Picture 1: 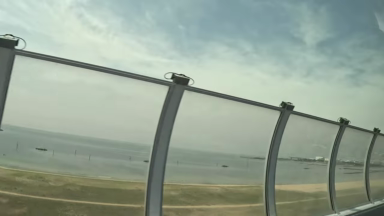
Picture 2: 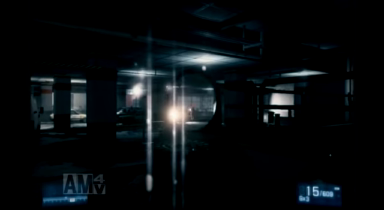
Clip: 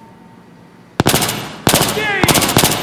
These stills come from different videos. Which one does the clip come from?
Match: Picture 2